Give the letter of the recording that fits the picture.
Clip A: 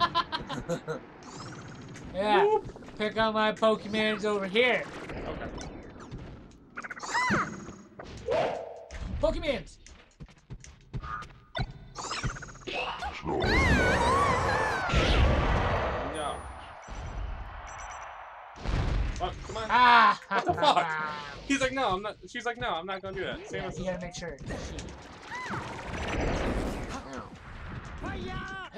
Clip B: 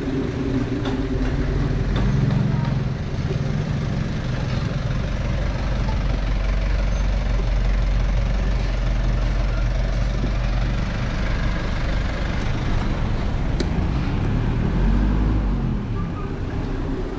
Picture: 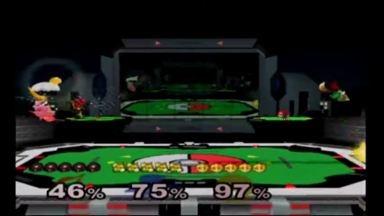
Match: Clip A